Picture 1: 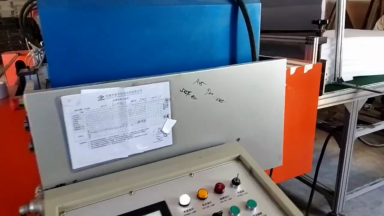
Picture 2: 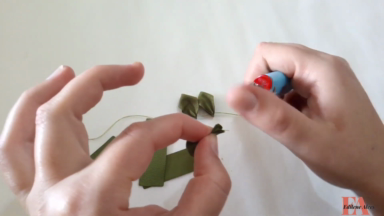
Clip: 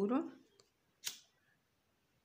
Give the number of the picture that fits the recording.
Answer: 2